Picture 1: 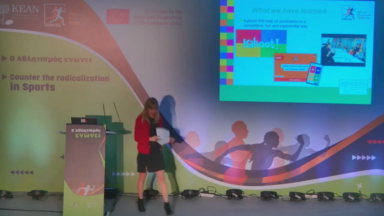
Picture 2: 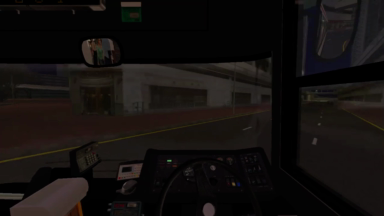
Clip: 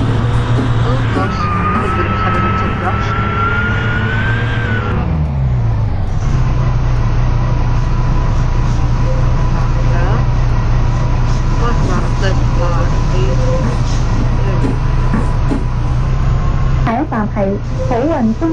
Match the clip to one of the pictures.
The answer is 2